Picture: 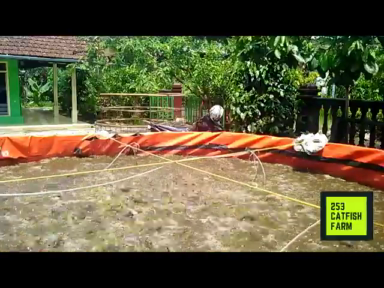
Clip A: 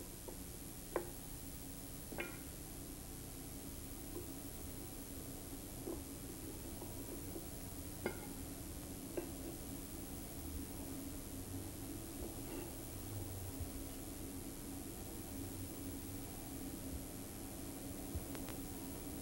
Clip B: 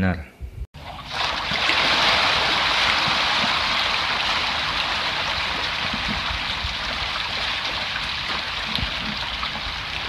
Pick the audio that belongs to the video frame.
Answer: B